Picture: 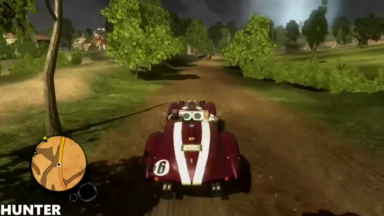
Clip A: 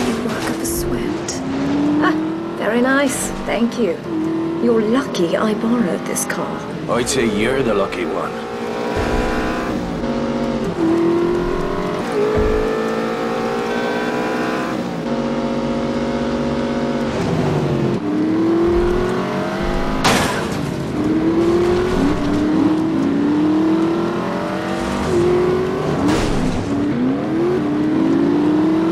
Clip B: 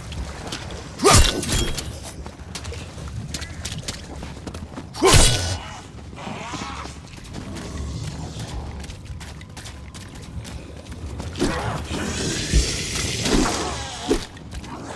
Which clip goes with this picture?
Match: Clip A